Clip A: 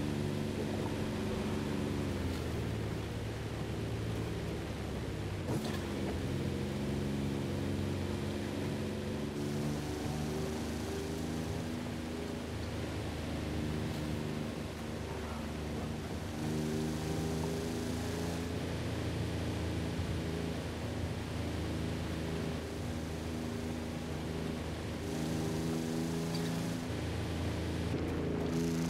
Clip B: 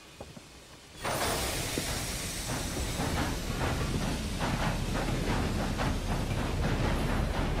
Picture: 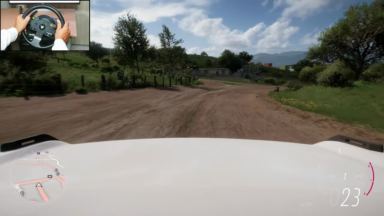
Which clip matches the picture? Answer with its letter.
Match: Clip A